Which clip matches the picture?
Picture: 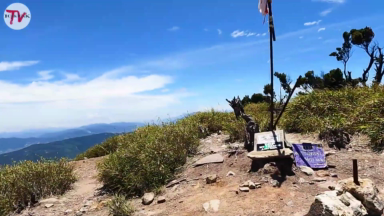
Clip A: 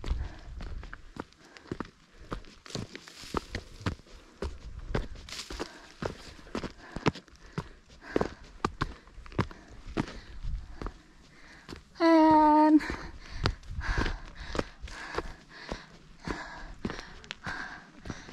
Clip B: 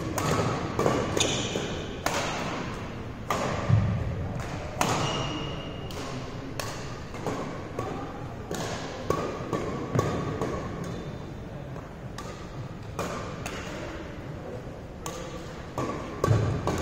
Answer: A